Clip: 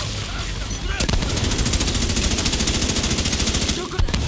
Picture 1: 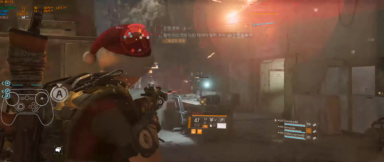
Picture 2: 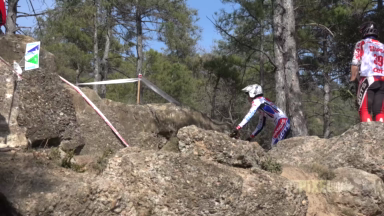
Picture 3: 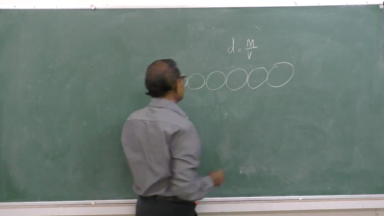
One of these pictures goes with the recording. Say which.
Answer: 1